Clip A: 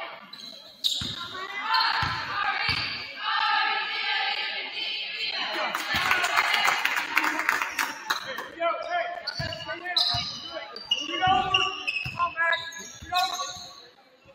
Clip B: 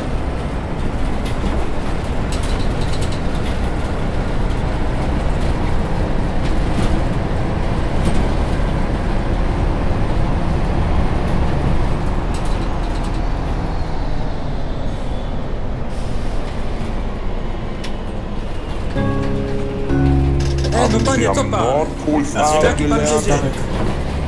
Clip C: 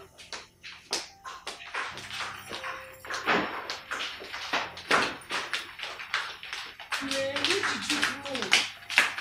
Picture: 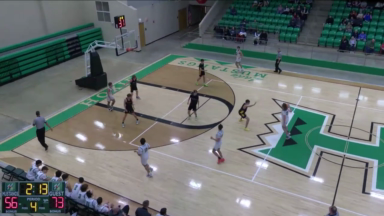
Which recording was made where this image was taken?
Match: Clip A